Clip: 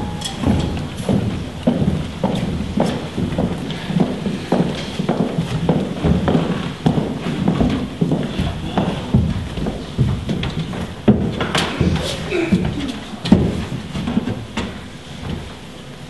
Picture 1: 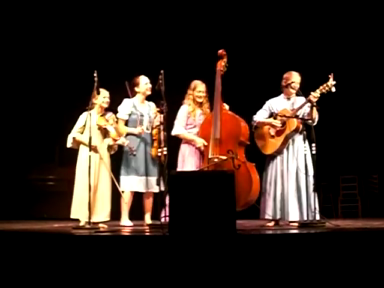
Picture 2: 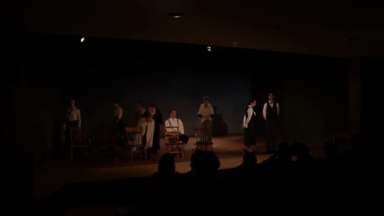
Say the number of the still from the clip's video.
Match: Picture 2